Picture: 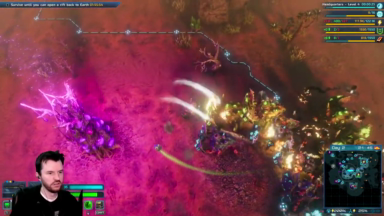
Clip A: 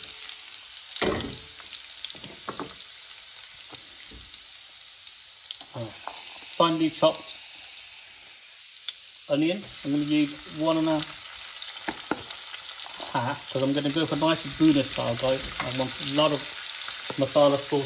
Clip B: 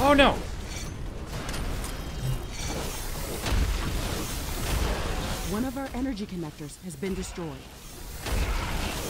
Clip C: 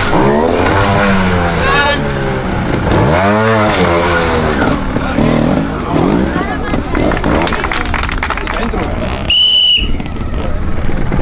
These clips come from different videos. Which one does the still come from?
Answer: B